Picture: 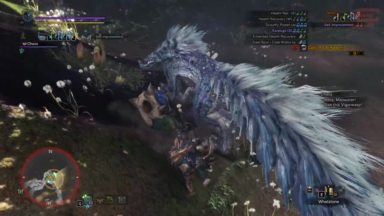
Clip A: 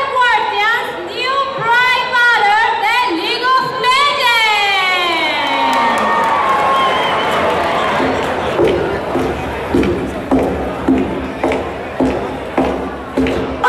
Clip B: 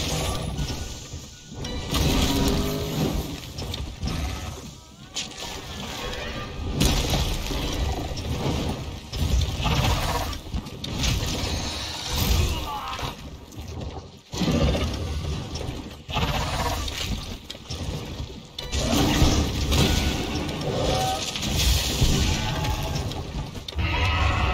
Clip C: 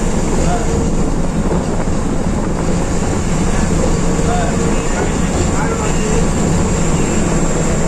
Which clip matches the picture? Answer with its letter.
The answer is B